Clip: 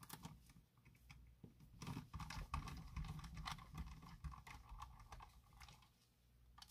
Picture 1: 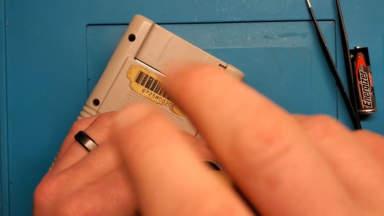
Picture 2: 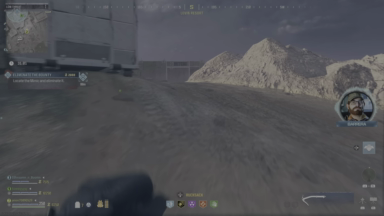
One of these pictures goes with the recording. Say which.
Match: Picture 1